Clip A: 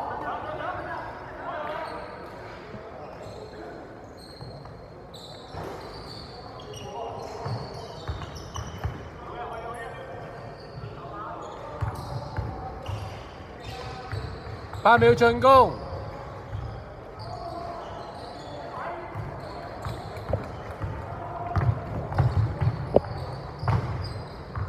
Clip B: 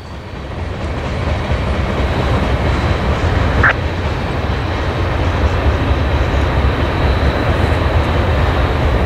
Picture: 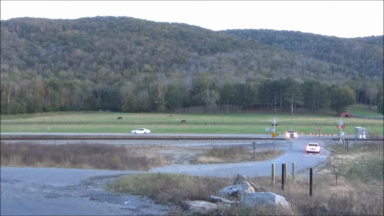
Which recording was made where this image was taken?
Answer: B